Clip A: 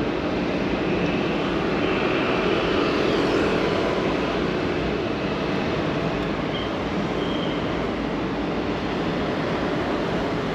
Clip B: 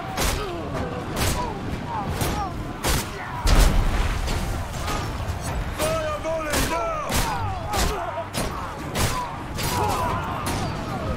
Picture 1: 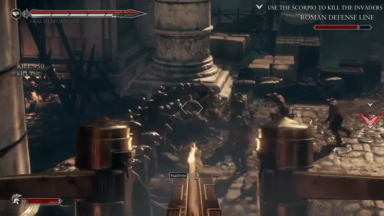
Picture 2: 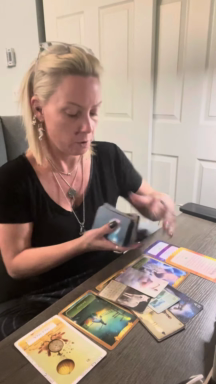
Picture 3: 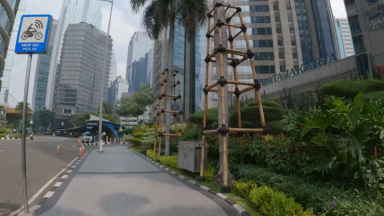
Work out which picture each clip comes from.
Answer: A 3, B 1